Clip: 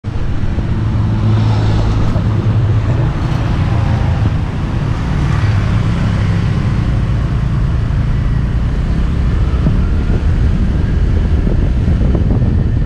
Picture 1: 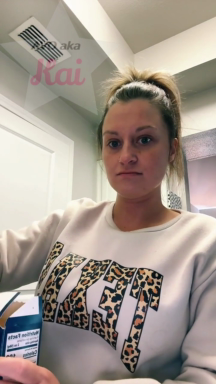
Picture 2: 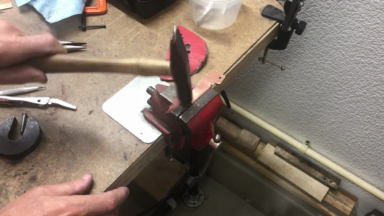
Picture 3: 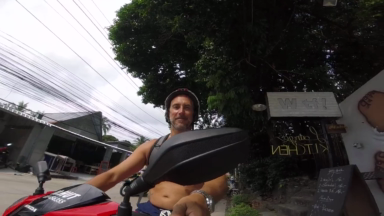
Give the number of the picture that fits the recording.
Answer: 3